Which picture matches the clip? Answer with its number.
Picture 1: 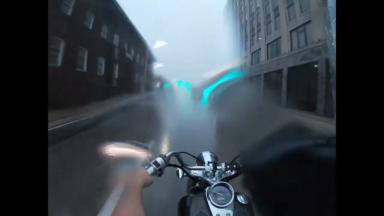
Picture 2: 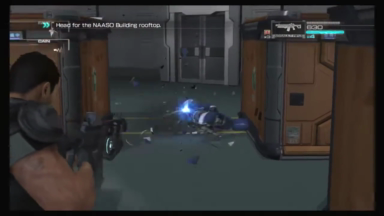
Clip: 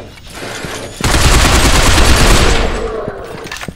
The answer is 2